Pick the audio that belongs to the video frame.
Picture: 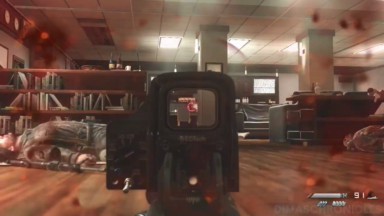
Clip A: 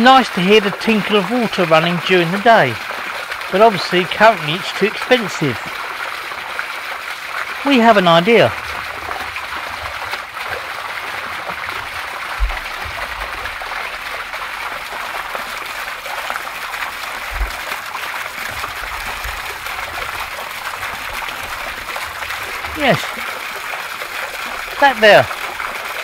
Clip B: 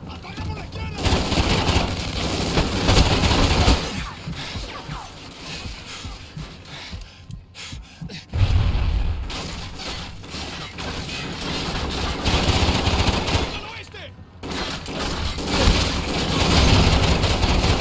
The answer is B